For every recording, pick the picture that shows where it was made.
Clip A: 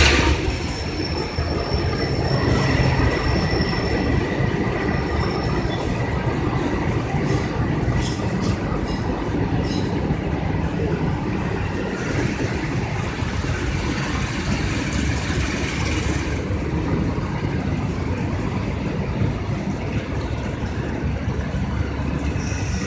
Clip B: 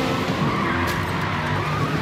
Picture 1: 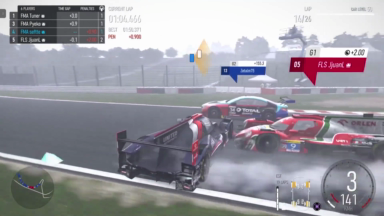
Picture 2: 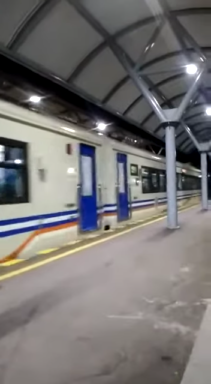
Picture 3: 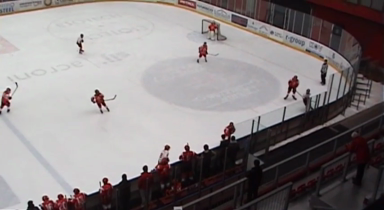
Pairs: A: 2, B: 1